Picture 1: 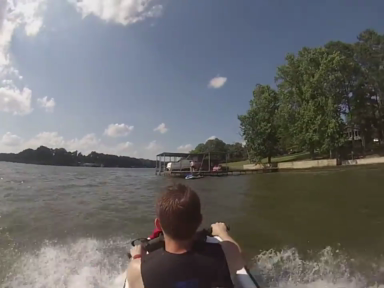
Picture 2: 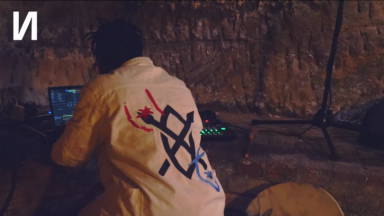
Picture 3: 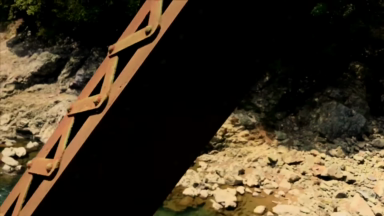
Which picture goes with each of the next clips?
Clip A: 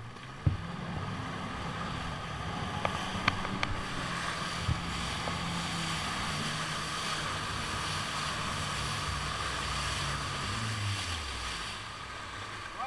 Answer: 1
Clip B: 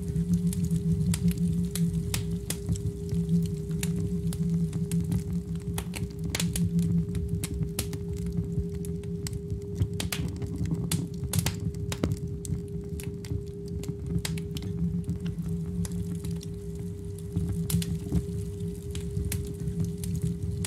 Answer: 2